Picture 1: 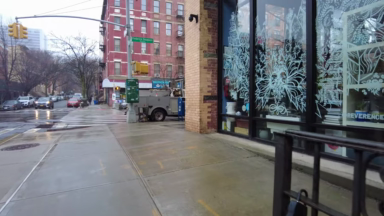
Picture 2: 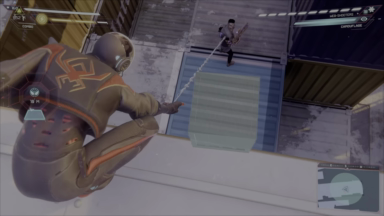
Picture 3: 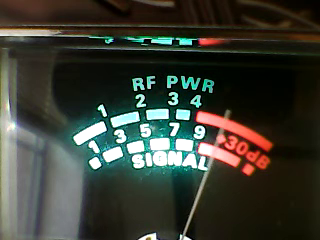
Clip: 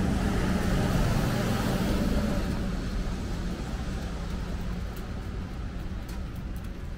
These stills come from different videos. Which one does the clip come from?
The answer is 1